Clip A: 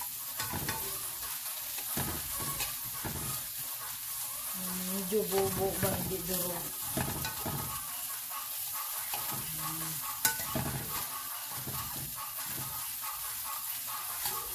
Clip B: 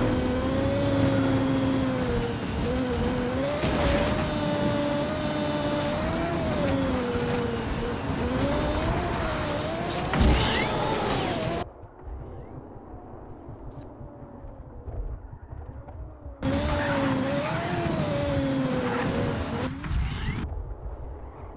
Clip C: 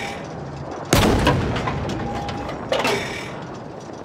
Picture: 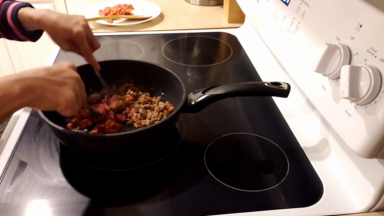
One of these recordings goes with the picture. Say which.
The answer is A